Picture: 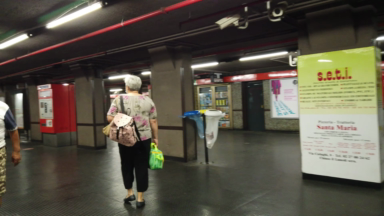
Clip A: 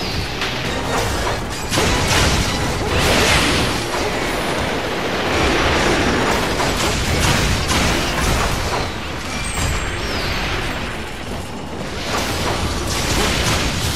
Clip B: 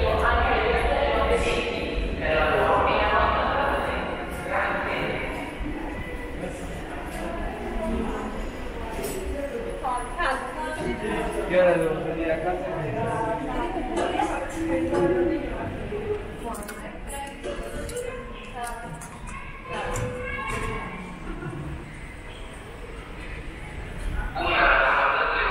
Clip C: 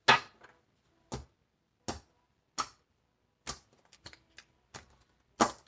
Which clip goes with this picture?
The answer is B